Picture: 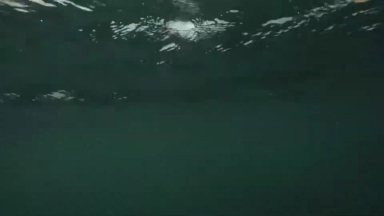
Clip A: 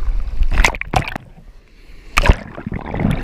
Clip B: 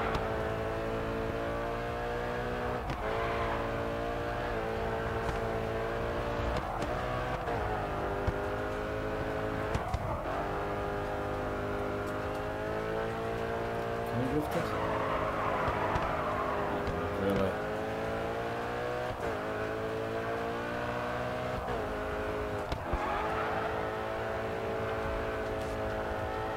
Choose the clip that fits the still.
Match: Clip A